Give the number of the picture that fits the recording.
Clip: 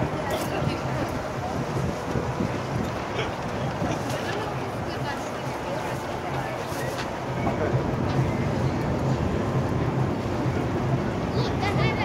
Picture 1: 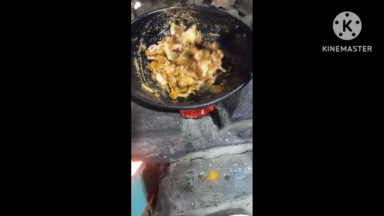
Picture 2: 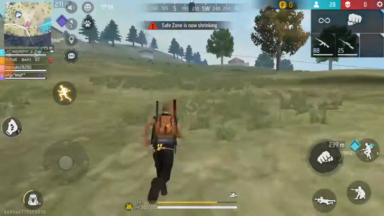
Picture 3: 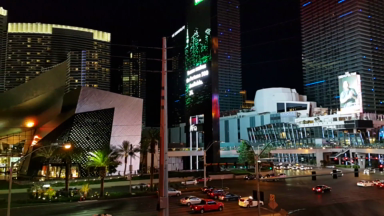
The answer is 3